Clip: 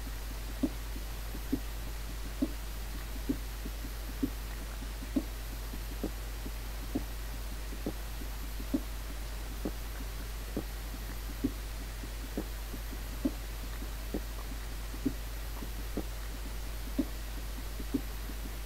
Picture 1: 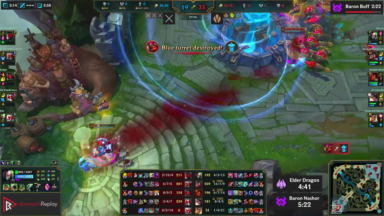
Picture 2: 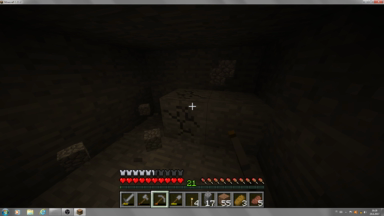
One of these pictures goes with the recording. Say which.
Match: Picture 2